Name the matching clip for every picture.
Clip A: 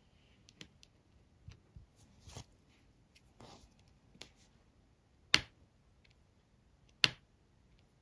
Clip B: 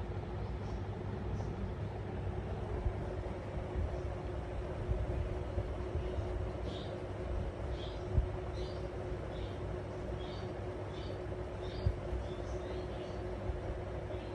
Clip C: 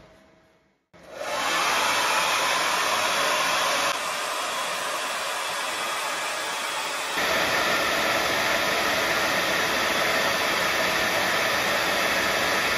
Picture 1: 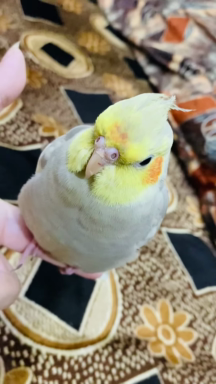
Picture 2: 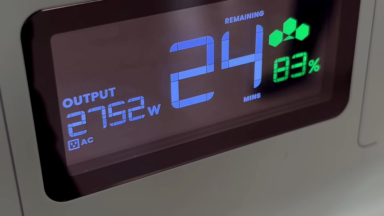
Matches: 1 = B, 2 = C